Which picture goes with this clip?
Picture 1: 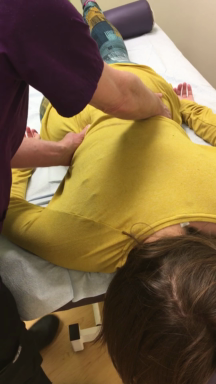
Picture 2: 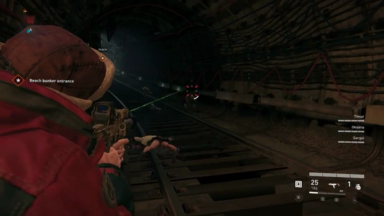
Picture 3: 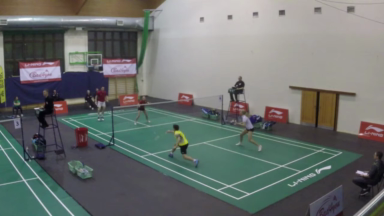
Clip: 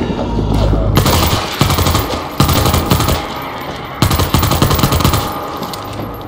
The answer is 2